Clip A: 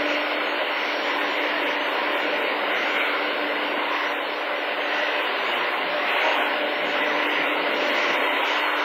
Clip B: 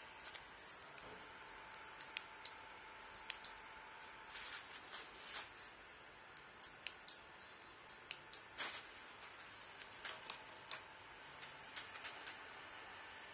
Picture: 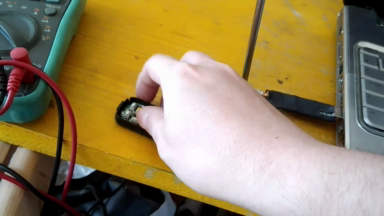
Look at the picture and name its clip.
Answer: B